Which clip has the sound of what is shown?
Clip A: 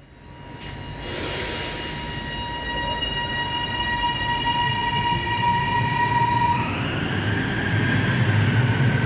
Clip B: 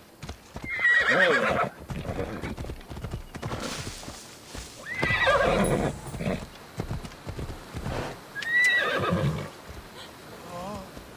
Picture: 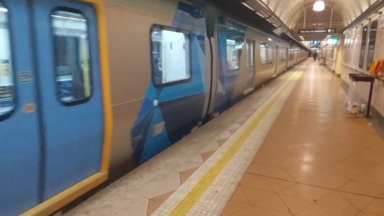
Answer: A